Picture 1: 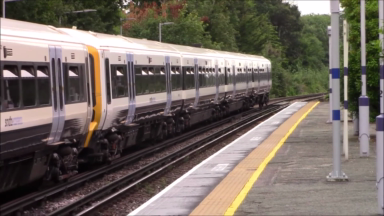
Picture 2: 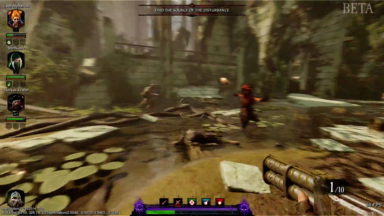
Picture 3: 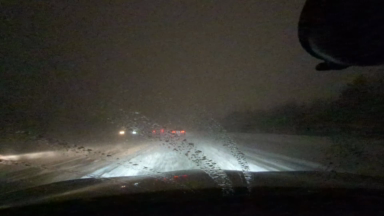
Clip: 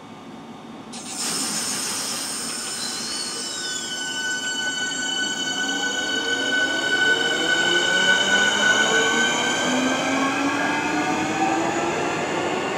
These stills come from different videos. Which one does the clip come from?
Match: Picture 1